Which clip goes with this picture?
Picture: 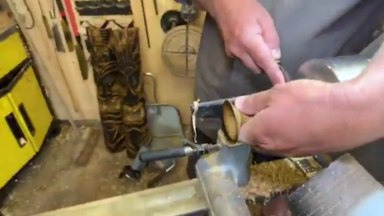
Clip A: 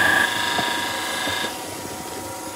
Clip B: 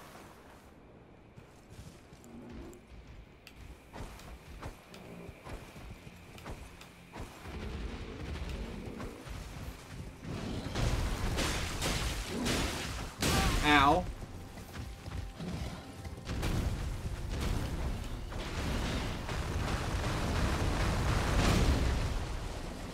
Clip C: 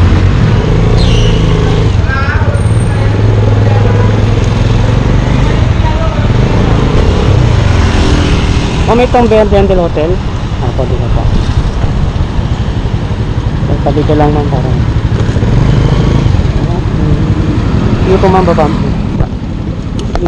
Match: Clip A